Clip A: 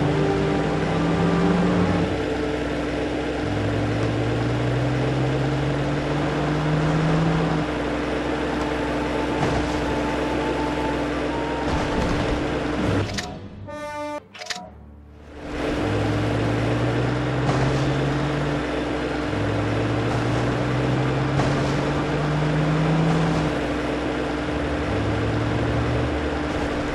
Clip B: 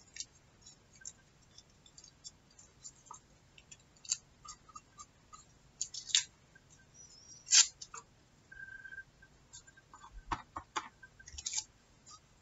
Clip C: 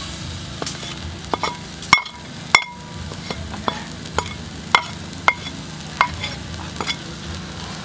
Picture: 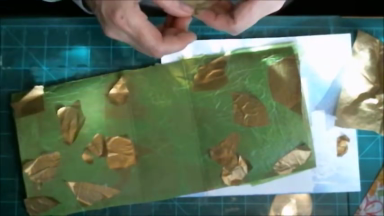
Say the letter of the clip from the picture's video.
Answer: B